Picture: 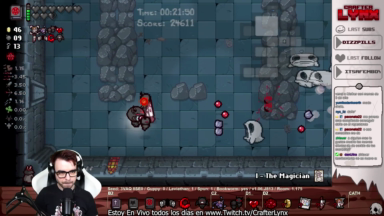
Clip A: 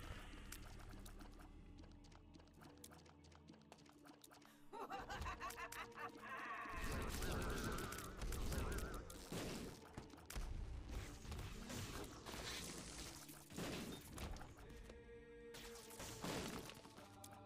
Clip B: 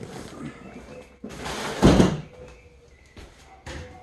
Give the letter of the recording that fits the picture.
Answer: A